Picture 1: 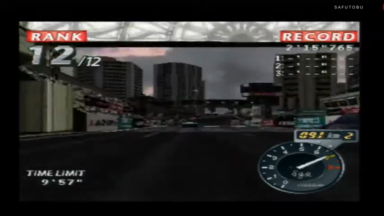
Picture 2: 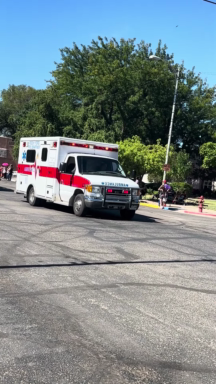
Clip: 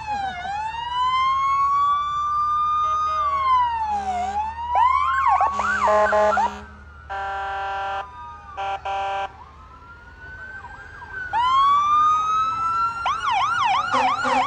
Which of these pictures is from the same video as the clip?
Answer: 2